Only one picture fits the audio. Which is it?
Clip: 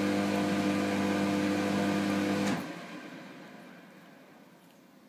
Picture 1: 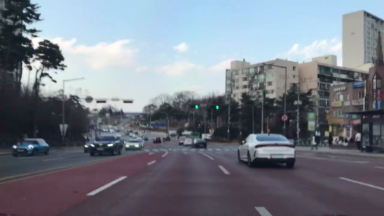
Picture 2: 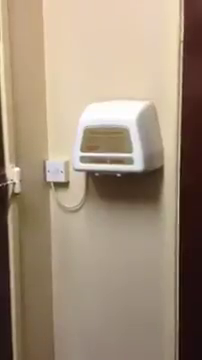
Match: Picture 2